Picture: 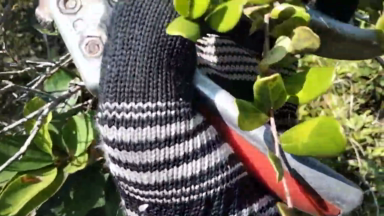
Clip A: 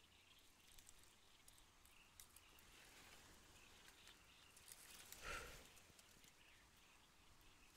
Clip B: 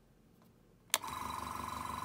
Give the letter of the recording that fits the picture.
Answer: A